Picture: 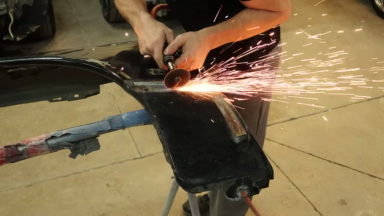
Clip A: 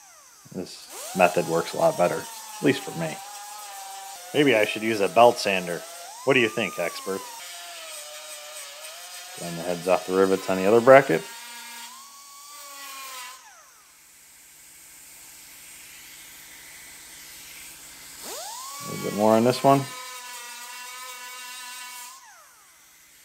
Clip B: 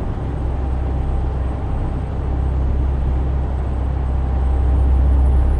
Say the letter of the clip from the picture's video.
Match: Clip A